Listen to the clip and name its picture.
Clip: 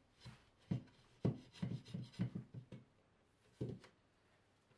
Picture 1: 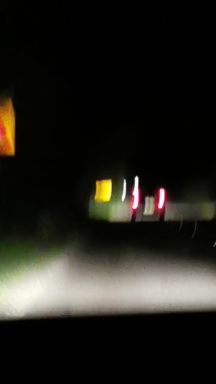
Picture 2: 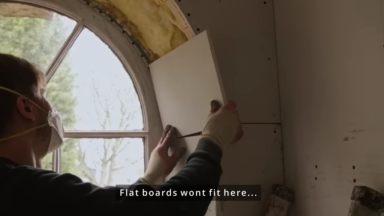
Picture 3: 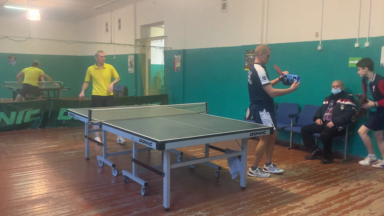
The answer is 2